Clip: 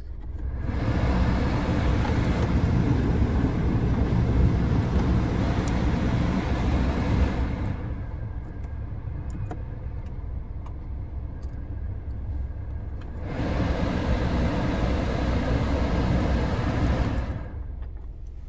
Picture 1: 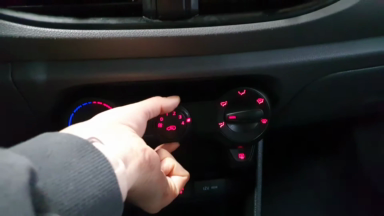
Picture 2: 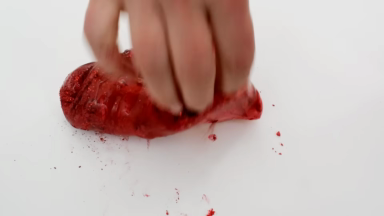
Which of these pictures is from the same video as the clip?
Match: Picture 1